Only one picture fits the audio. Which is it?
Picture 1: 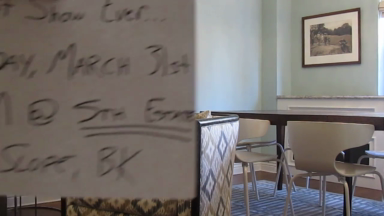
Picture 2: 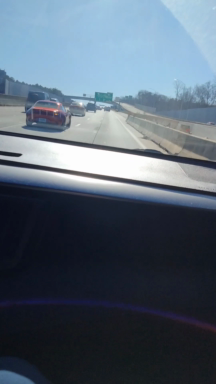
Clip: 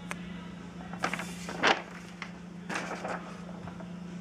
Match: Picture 1